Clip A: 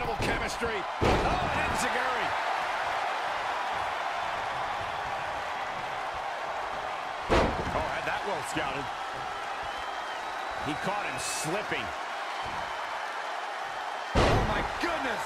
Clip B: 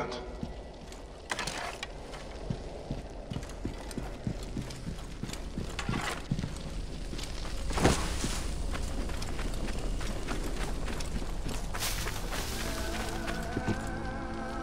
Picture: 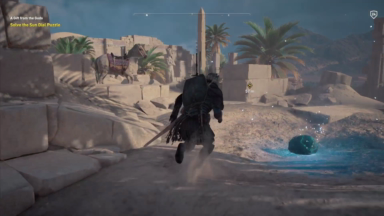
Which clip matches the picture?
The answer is B